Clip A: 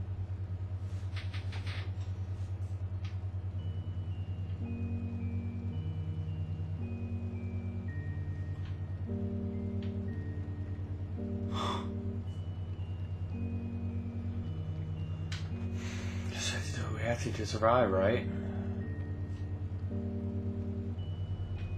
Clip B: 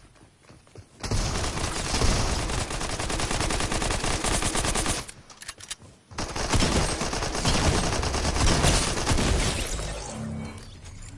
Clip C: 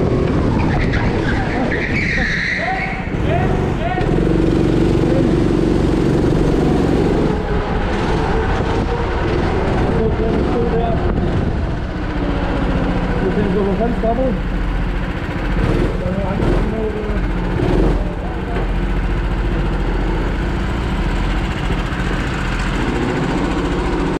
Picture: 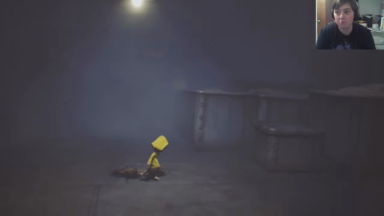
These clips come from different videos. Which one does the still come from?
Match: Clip A